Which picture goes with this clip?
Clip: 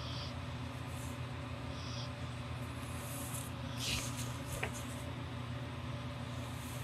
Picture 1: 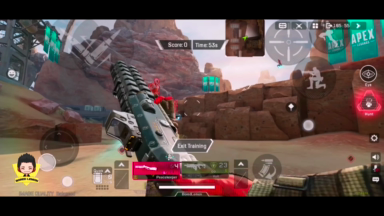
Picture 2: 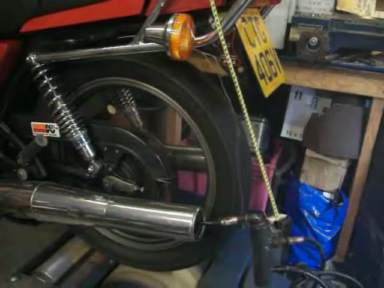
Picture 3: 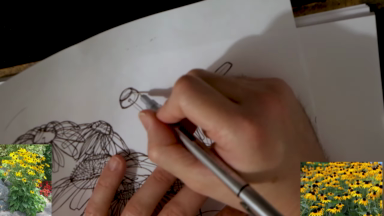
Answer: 3